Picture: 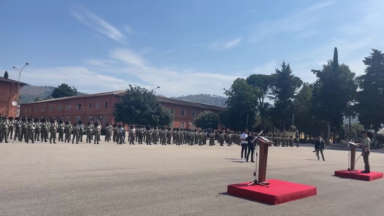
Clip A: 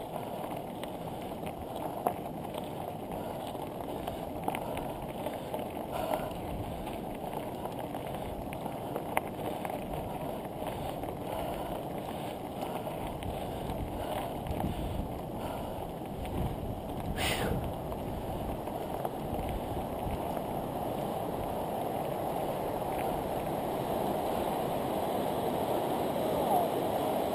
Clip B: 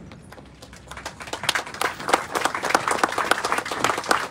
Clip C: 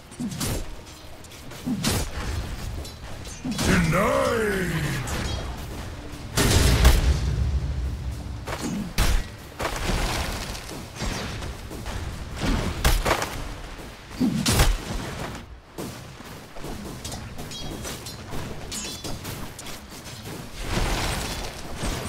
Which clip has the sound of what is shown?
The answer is B